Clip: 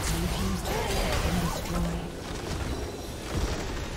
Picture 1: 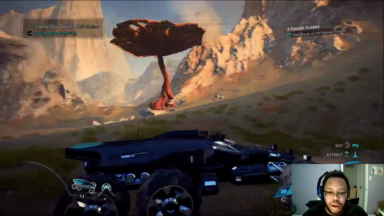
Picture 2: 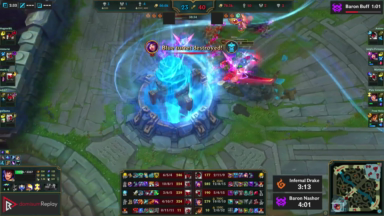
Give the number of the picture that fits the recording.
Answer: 2